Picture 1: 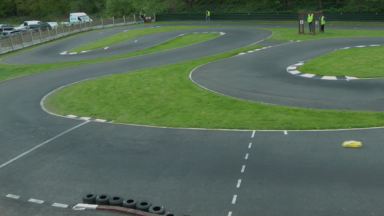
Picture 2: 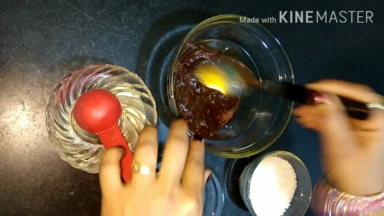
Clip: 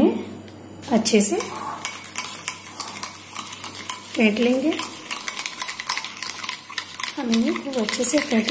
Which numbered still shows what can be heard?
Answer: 2